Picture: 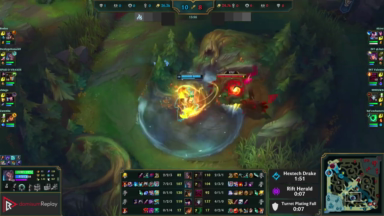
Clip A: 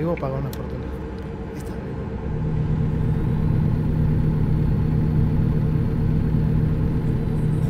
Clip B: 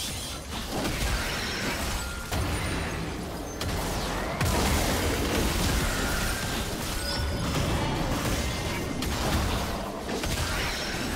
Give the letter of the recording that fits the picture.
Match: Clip B